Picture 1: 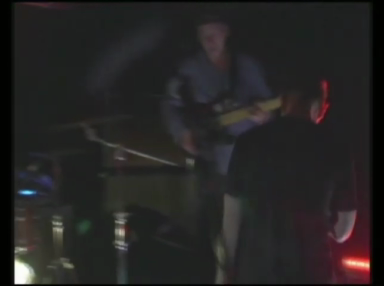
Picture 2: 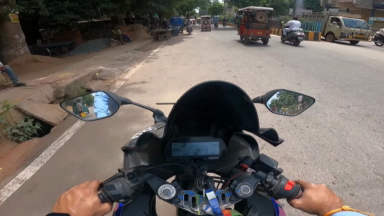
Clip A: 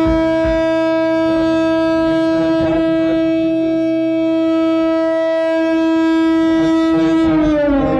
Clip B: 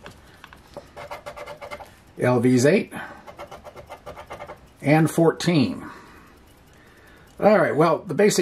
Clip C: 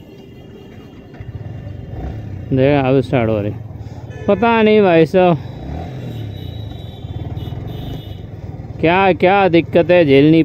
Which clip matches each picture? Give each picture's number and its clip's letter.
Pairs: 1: A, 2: C